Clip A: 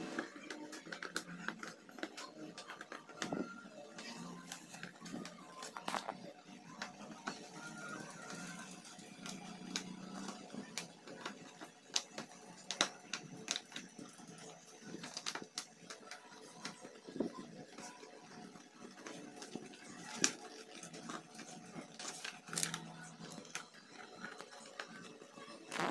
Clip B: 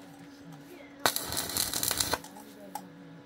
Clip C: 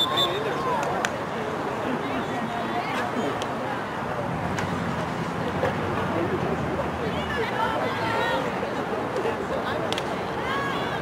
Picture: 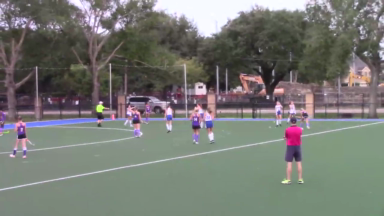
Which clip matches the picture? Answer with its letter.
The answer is C